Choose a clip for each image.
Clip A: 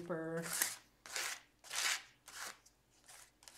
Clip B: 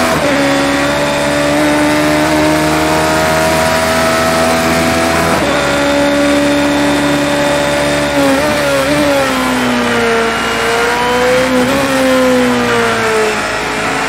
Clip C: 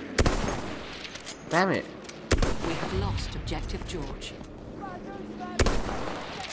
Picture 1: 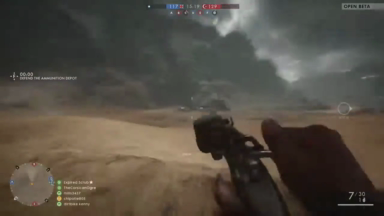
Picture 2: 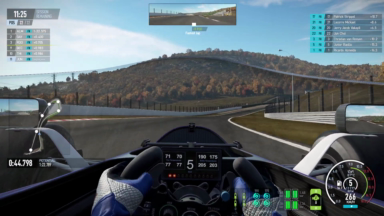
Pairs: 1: C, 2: B